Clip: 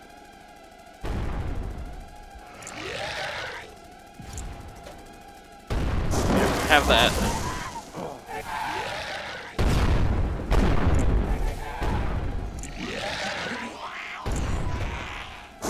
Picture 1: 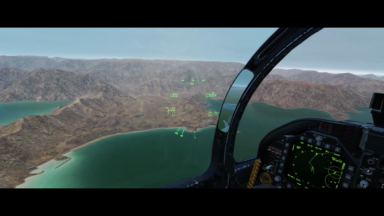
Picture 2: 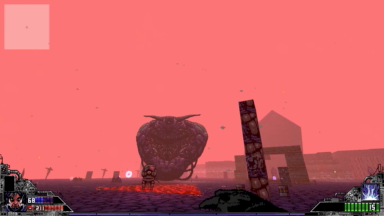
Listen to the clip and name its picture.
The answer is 2